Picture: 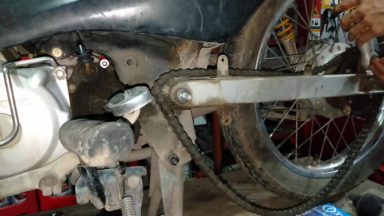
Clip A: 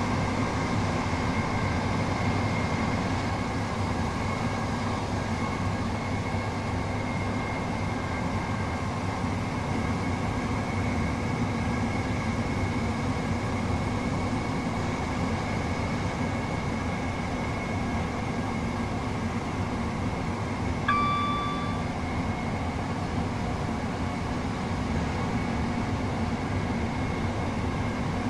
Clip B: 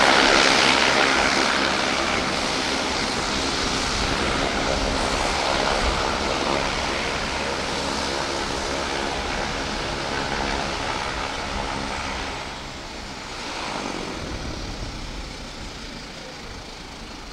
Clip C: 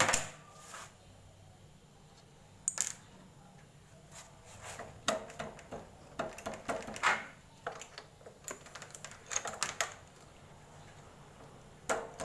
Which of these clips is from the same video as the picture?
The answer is C